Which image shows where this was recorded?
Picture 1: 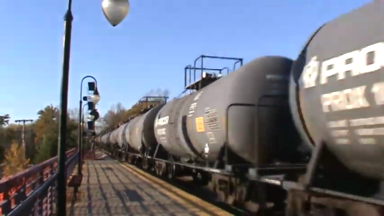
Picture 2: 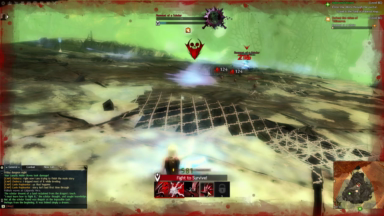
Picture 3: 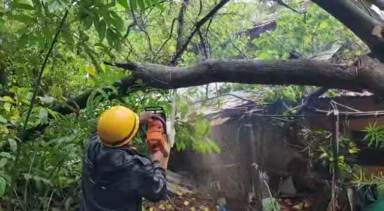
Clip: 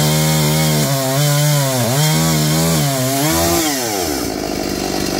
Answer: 3